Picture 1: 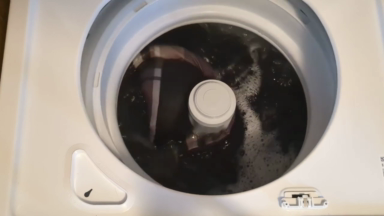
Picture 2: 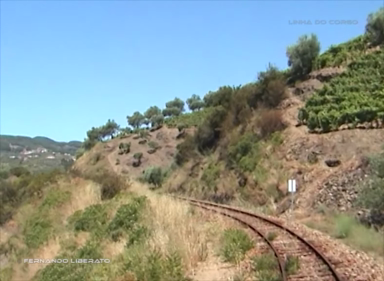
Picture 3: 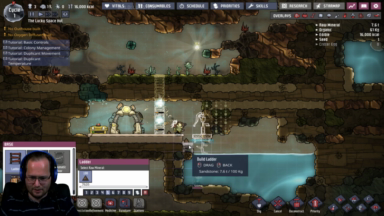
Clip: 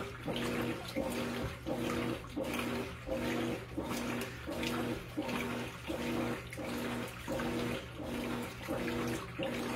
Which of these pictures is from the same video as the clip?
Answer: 1